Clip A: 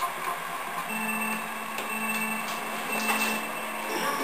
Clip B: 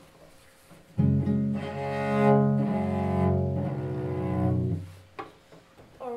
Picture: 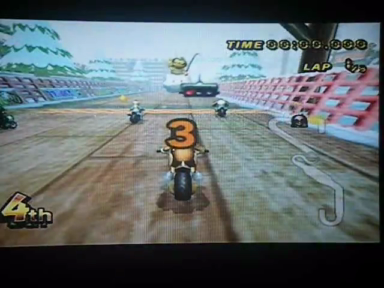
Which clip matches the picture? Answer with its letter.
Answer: A